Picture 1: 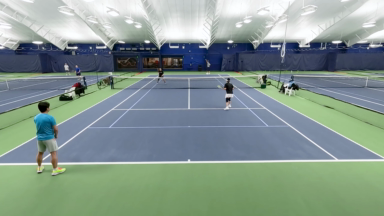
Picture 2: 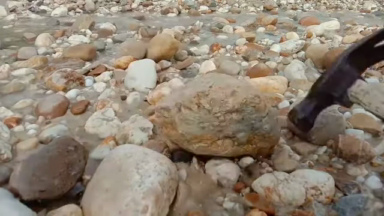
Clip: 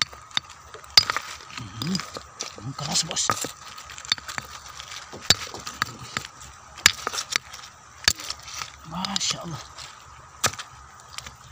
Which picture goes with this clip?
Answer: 2